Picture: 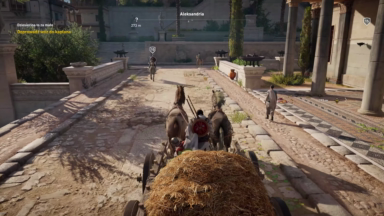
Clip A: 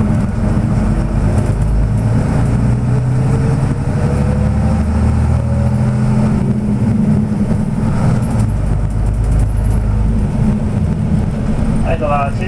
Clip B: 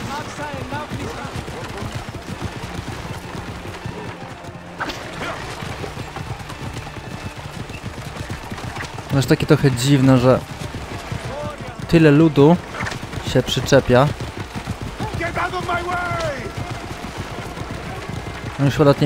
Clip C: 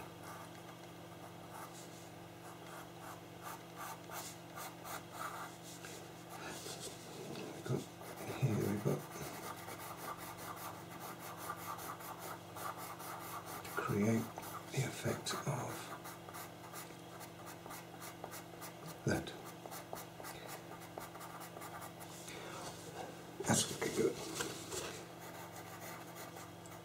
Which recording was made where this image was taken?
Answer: B